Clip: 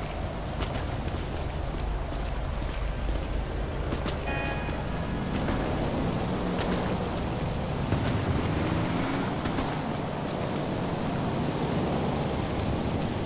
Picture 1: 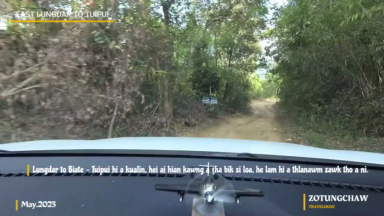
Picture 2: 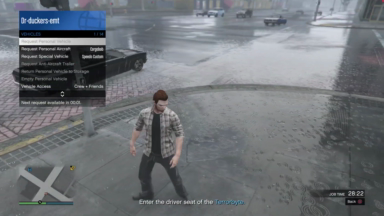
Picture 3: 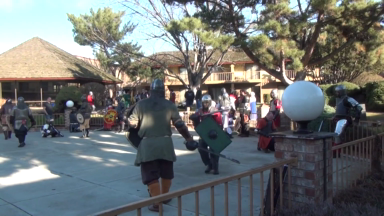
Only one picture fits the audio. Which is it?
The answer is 2